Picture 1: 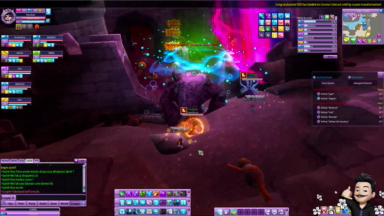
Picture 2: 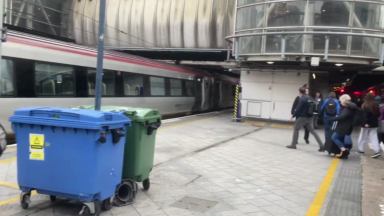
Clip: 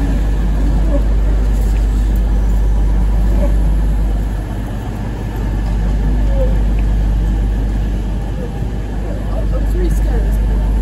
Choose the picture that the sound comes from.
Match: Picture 2